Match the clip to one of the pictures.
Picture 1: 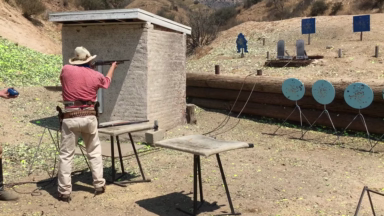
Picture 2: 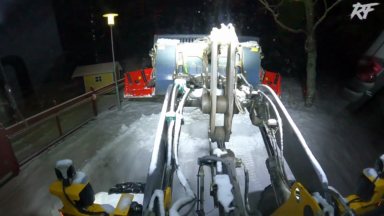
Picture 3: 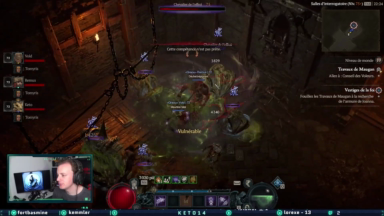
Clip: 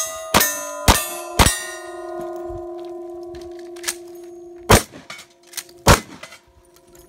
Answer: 1